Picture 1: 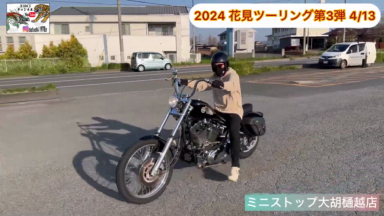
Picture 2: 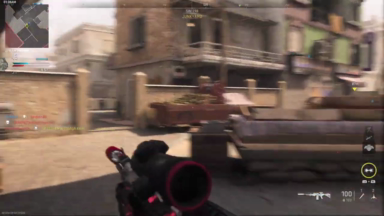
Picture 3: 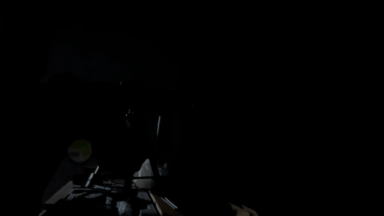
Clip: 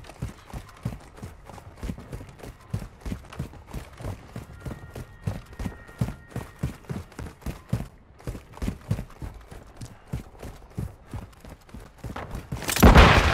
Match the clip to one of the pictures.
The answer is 2